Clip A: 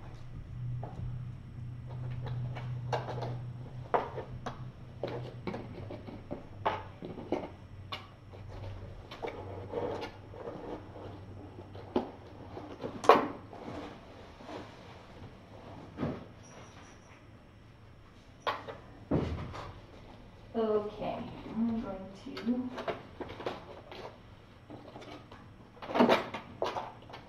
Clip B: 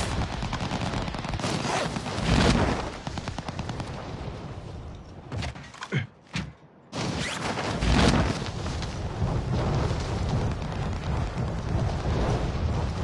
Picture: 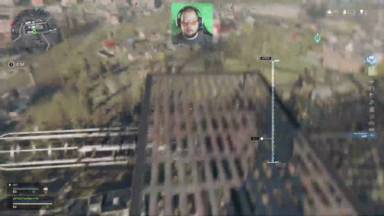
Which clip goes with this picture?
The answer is B